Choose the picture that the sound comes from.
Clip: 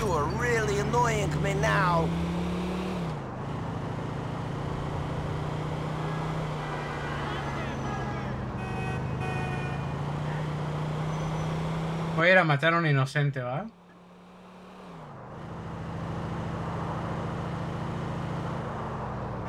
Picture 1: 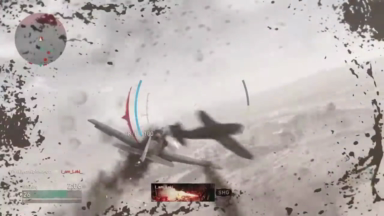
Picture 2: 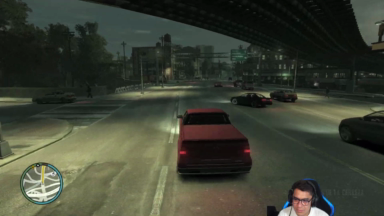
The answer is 2